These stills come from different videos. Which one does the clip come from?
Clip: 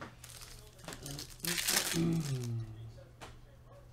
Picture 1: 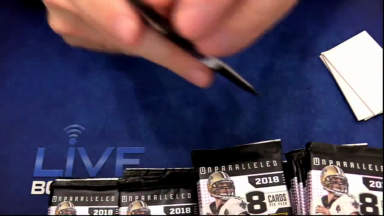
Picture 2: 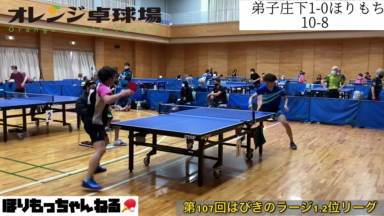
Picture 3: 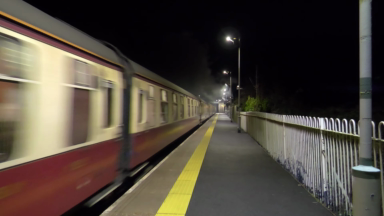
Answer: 1